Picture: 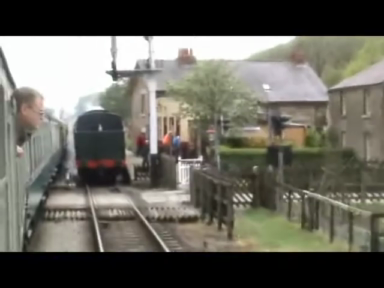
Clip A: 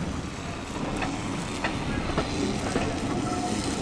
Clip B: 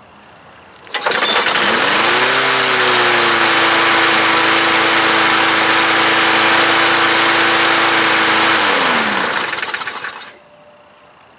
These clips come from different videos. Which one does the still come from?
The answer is A